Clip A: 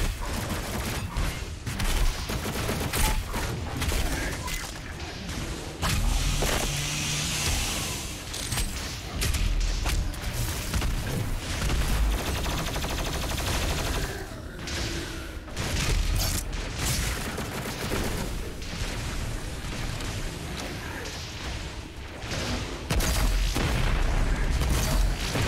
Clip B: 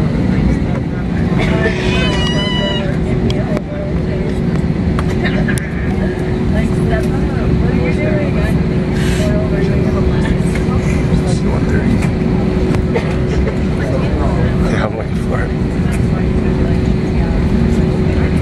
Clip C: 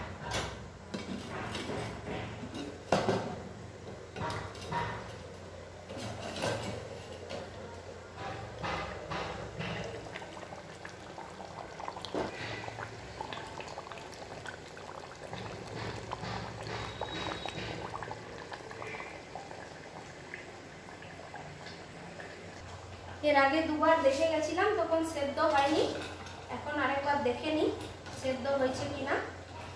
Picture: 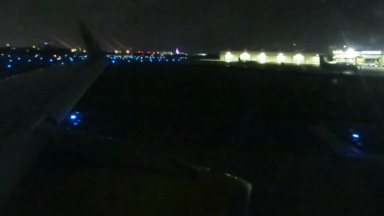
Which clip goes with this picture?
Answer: B